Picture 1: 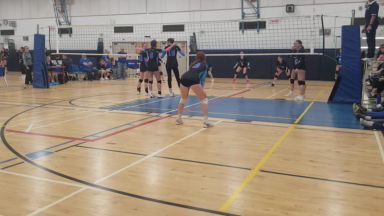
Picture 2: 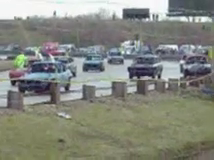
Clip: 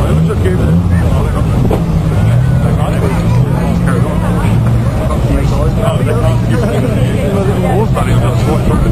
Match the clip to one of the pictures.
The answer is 2